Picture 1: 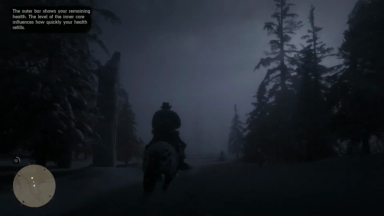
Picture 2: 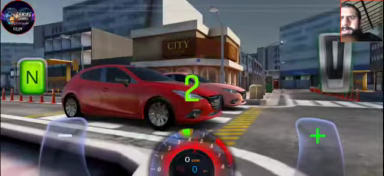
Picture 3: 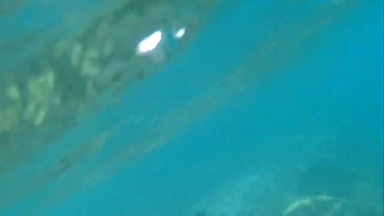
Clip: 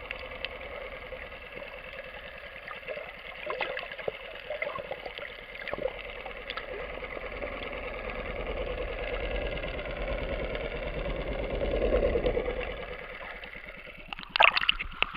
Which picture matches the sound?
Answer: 3